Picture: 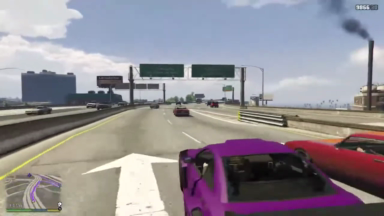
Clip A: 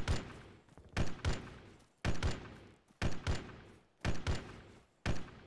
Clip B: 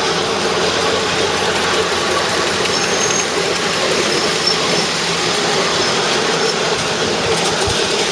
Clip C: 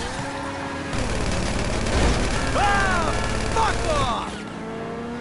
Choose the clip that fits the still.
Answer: C